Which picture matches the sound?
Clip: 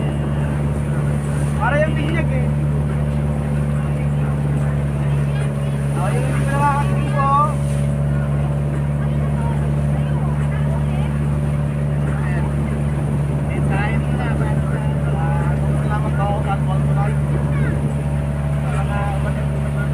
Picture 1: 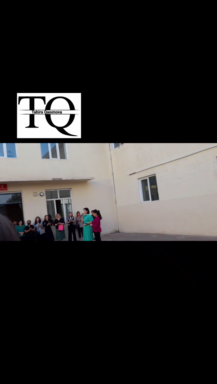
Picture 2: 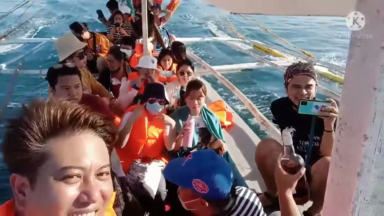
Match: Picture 2